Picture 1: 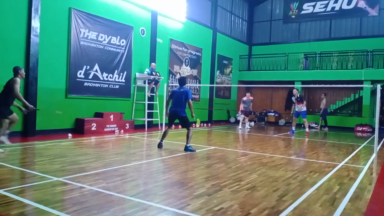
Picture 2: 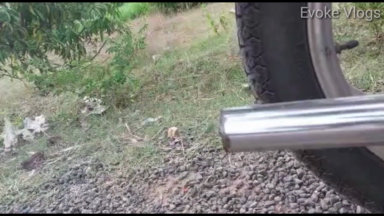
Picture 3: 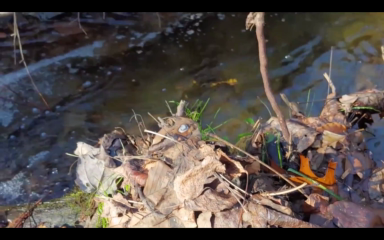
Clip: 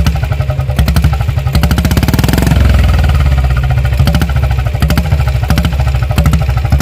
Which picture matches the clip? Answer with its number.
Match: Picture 2